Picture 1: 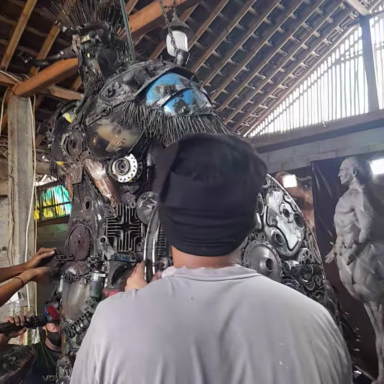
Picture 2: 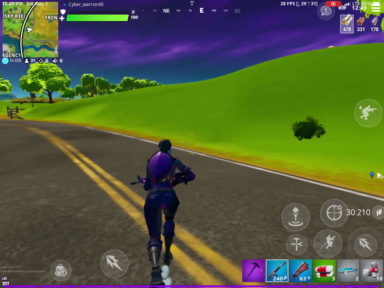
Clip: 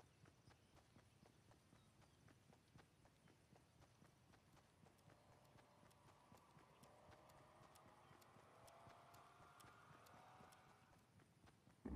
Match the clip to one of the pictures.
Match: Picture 2